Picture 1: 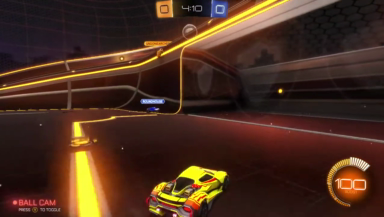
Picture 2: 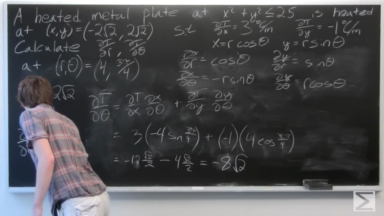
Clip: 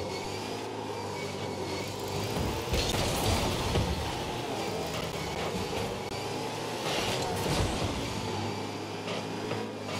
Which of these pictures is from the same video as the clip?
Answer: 1